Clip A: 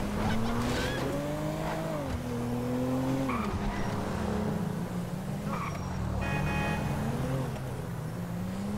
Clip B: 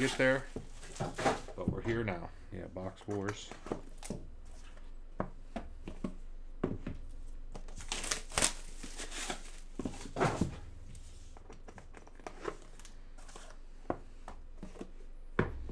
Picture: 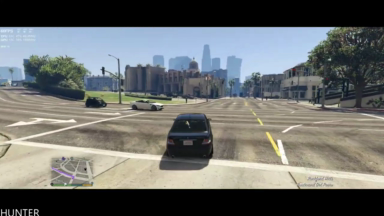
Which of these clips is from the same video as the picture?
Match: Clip A